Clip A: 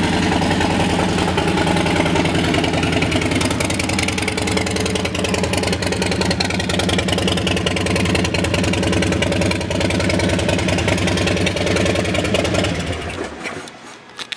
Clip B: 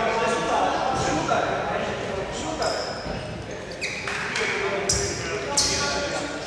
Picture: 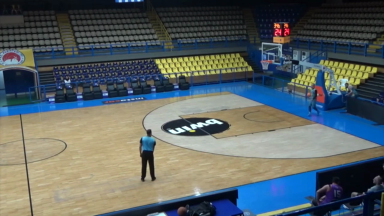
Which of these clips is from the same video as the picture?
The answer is B